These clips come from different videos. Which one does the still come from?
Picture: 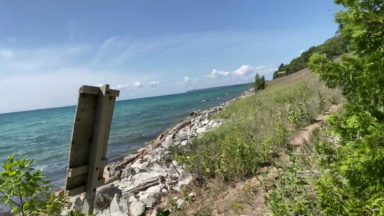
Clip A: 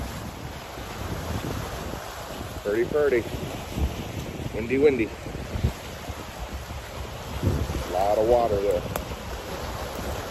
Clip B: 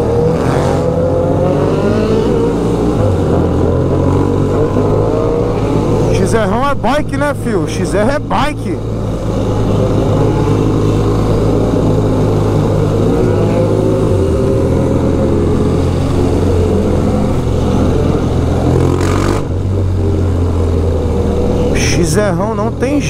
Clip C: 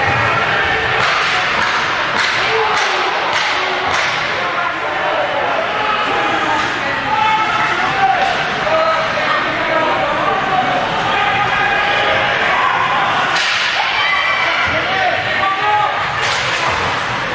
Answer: A